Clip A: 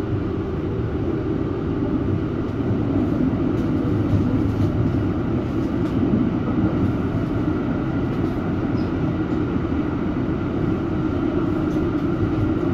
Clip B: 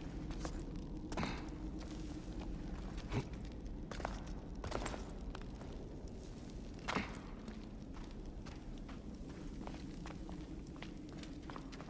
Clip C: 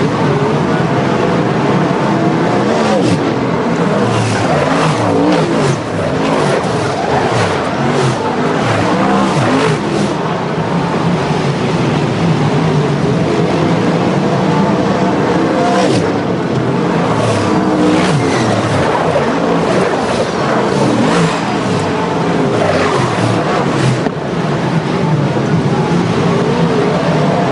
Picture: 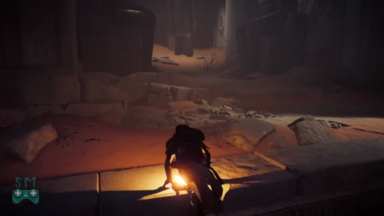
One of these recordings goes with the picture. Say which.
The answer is B